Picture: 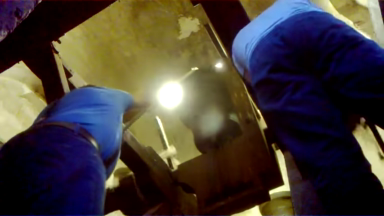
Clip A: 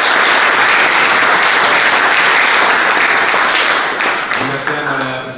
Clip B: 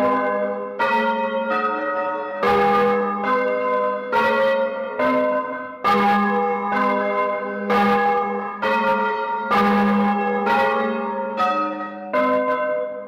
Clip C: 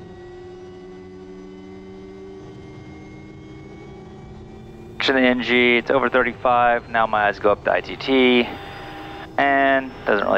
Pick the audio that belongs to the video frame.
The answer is B